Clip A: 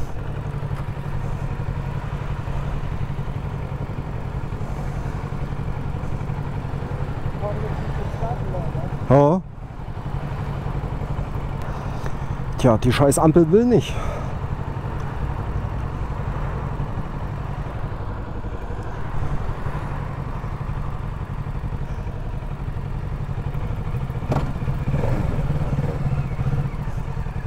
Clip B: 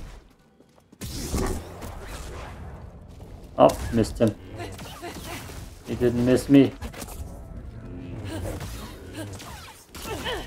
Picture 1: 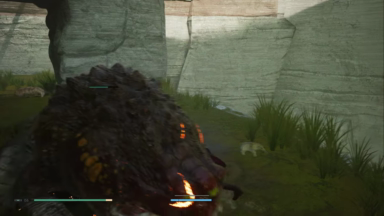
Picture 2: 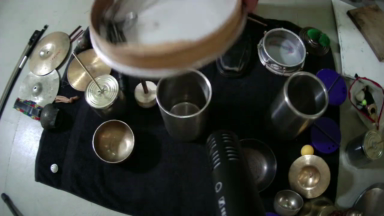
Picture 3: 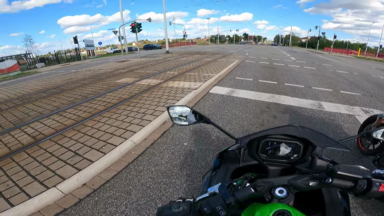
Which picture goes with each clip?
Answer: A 3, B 1